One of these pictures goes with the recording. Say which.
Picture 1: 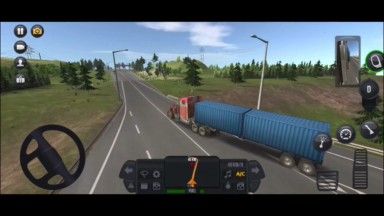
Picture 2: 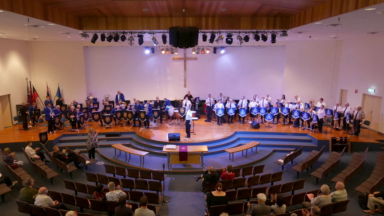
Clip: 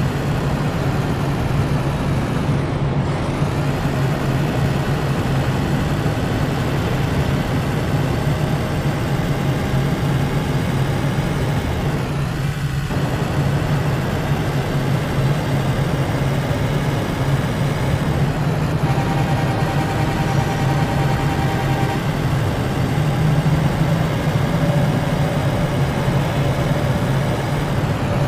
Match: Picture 1